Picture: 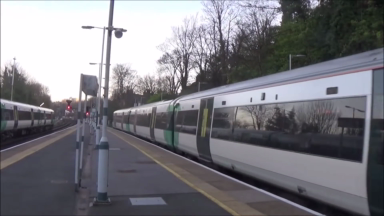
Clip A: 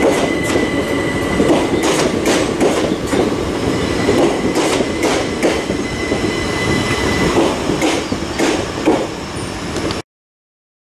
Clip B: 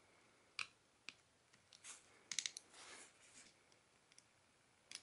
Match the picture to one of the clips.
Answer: A